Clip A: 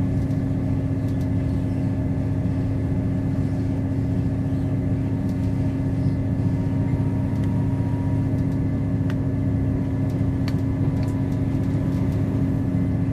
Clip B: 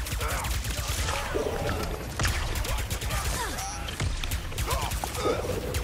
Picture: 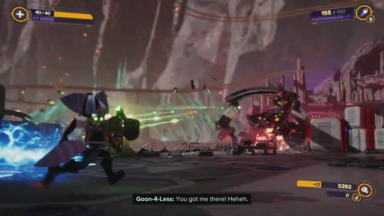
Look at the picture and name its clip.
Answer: B